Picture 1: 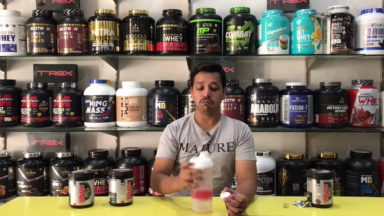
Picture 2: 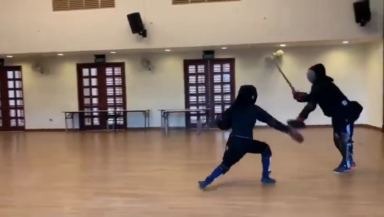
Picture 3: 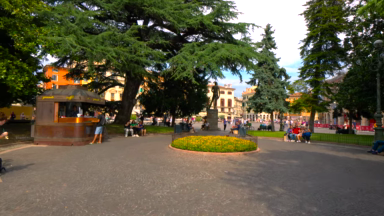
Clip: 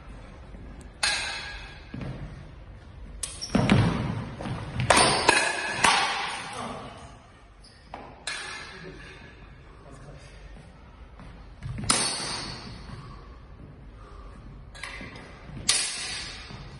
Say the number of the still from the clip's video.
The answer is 2